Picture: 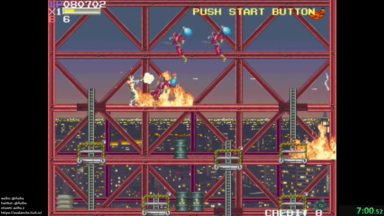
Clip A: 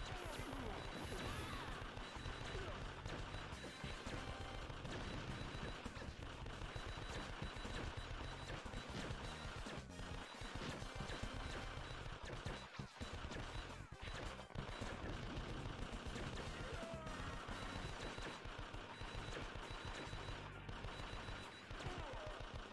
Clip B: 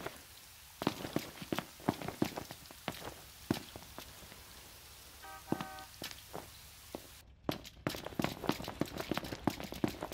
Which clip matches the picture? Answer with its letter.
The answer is A